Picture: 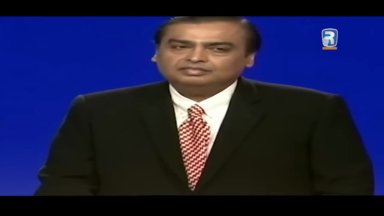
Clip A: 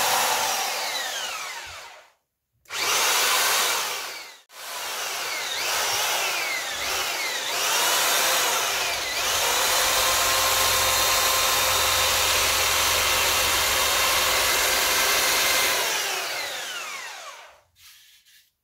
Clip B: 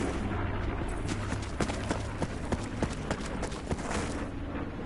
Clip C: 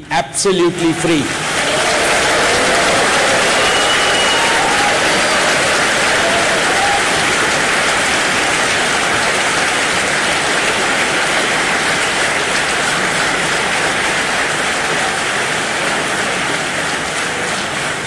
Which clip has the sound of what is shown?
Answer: C